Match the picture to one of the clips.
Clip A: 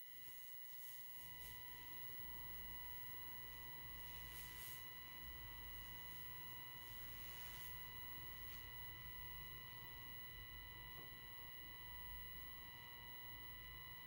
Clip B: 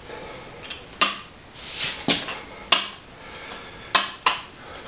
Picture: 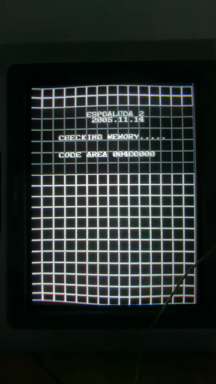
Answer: A